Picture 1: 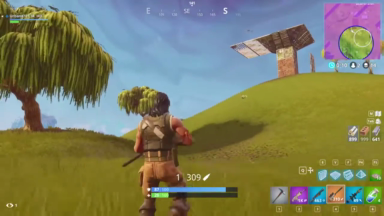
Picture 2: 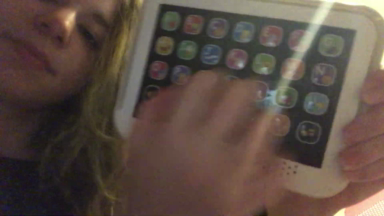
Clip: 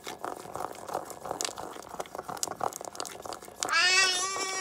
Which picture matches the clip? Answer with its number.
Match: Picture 2